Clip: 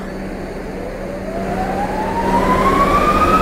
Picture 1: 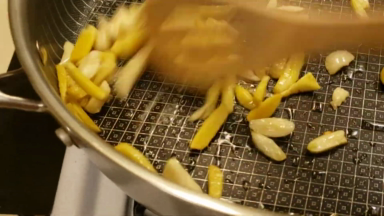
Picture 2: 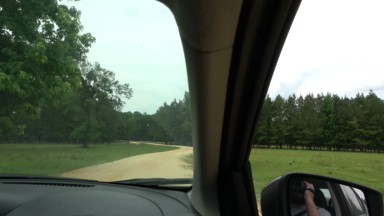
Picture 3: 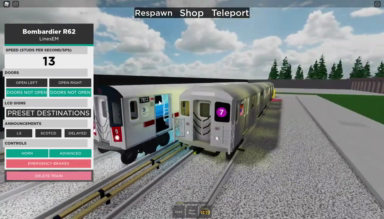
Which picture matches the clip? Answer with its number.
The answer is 3